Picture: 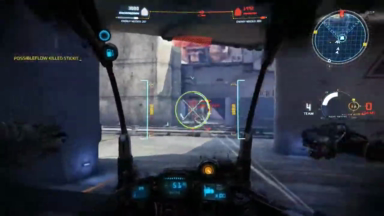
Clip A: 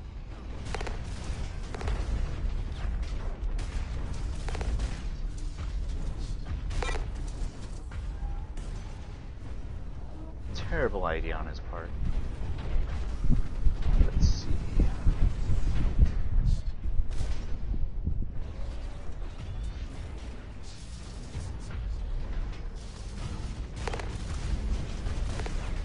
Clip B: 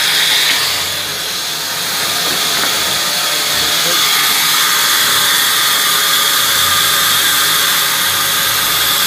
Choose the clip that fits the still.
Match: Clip A